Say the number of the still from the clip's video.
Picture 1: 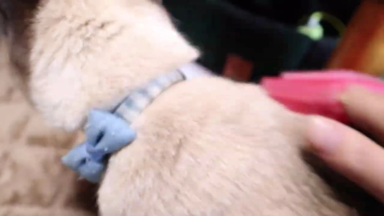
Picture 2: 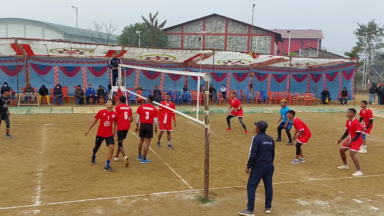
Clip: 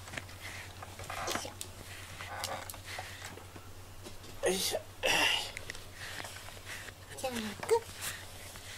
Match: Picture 1